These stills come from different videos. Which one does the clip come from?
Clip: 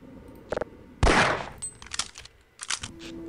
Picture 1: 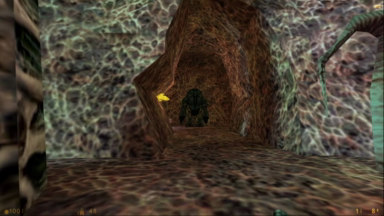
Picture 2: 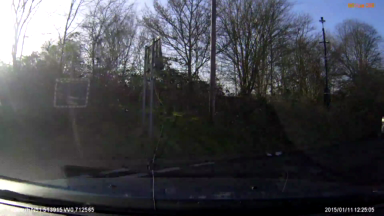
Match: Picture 1